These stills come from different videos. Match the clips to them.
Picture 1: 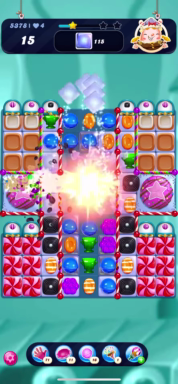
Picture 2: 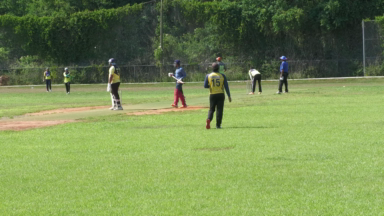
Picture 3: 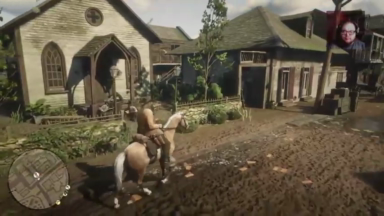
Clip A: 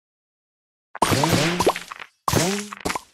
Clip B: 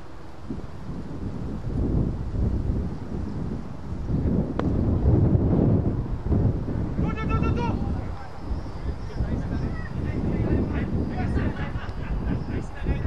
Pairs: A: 1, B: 2